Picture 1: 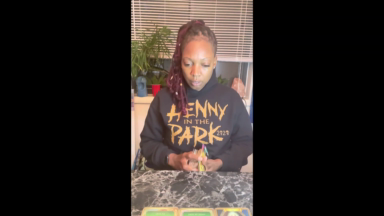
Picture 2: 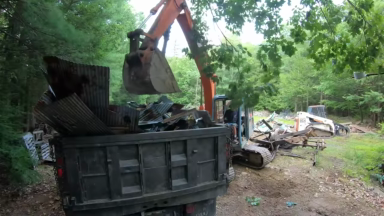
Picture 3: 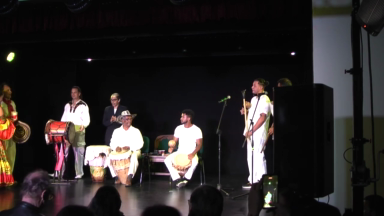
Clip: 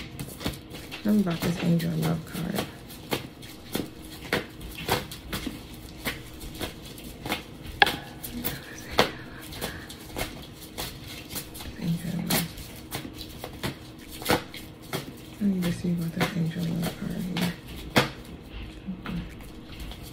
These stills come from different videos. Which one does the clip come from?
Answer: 1